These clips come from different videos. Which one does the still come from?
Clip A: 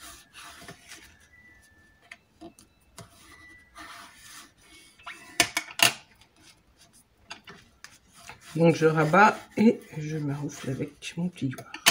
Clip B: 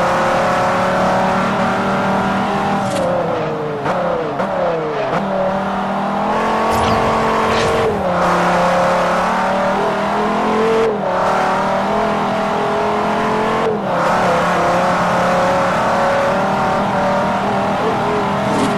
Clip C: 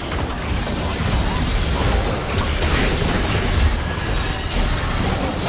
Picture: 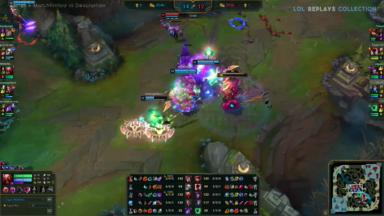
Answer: C